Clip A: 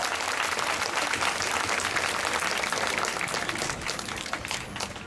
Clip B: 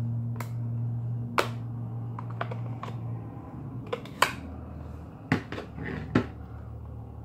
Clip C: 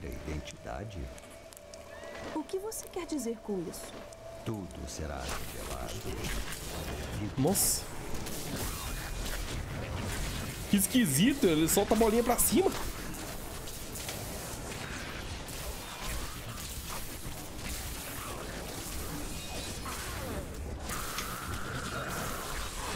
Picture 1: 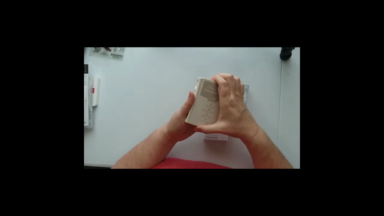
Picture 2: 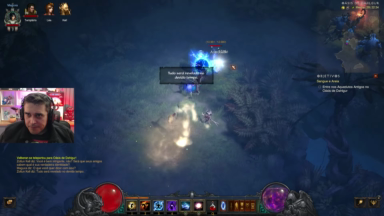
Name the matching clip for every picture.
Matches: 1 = B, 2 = C